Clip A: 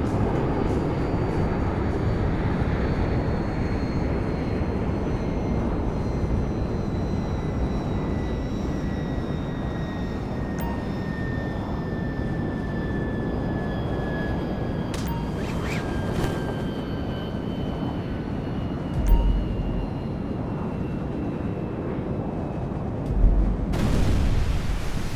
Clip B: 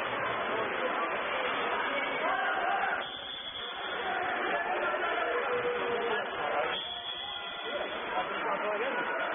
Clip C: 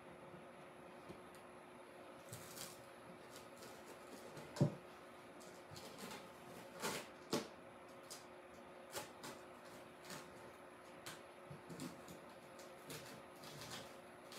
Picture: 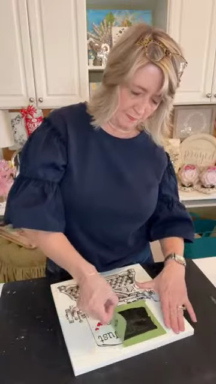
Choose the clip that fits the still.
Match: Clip C